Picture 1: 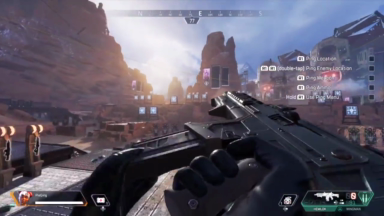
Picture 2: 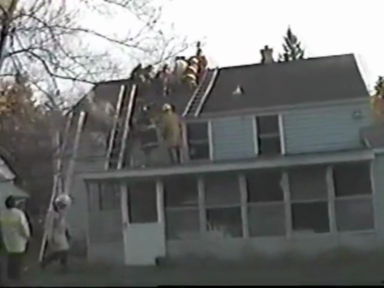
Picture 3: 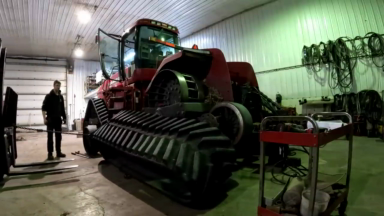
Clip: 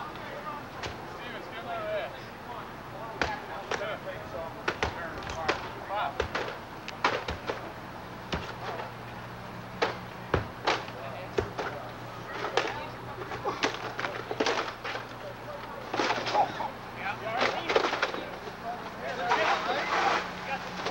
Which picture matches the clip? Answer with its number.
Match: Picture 2